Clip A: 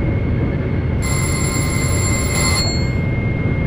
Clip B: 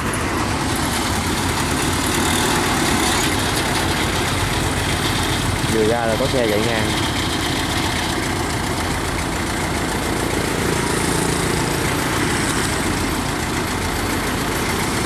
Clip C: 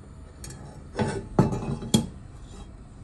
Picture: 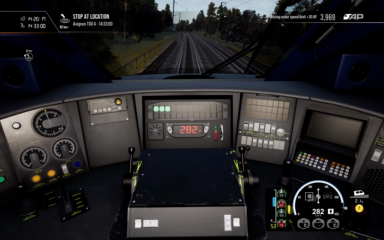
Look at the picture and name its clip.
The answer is A